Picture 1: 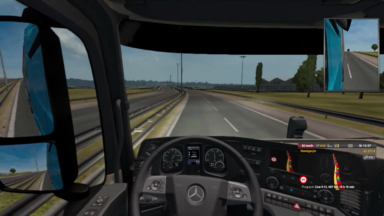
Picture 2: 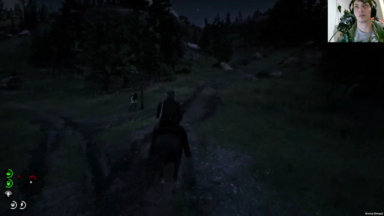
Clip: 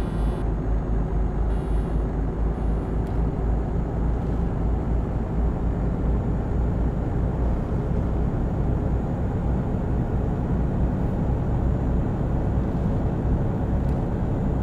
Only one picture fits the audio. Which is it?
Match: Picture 1